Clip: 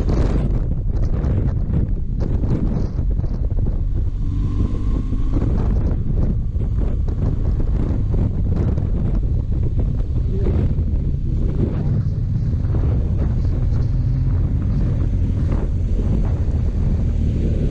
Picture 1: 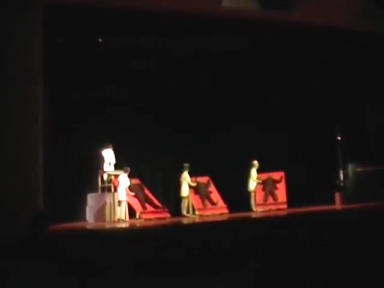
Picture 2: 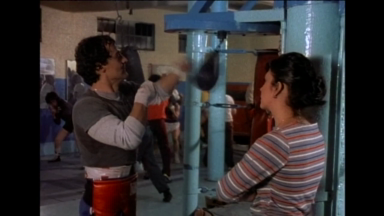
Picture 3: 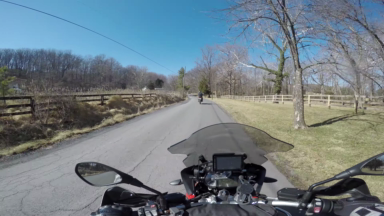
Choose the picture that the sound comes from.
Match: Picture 3